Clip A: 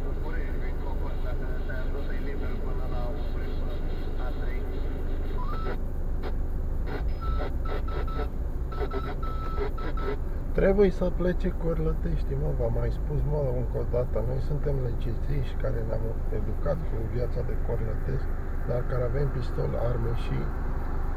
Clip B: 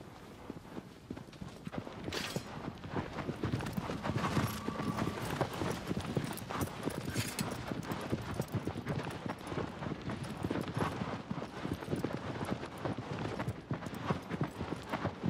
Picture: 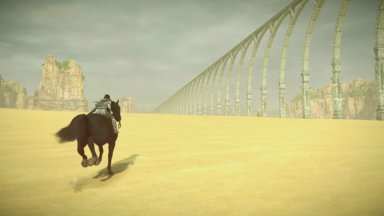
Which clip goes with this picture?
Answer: B